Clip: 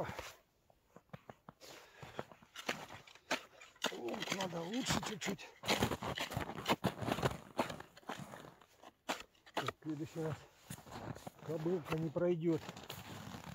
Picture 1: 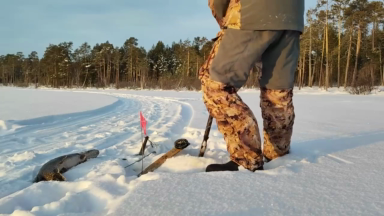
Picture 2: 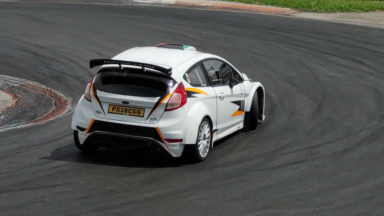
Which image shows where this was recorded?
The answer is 1